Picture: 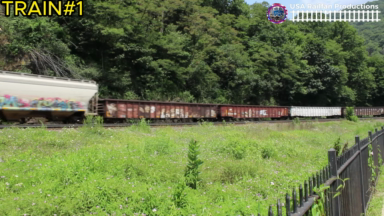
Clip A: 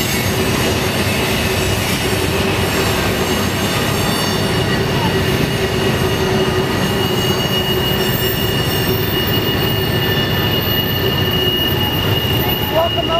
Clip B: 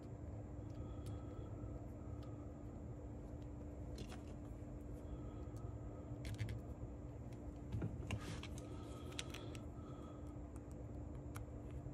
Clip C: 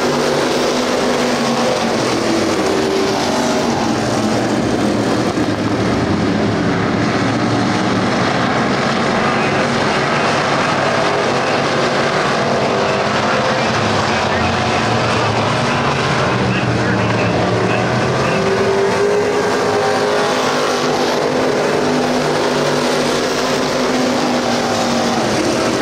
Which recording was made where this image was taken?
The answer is A